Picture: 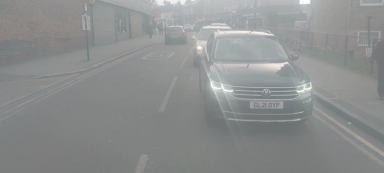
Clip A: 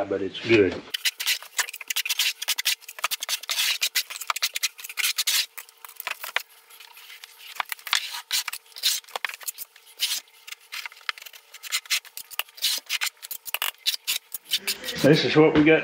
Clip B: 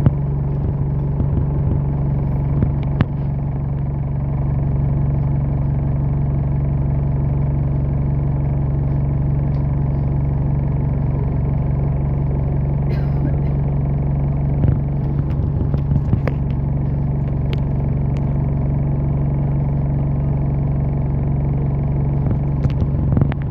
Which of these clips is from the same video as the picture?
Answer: B